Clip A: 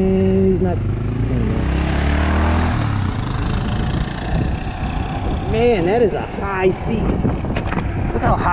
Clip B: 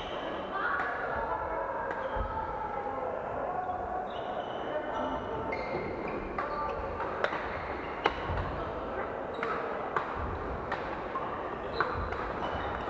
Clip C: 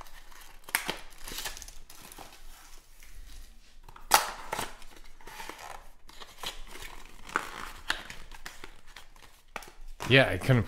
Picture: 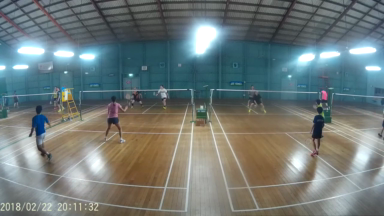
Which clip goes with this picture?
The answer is B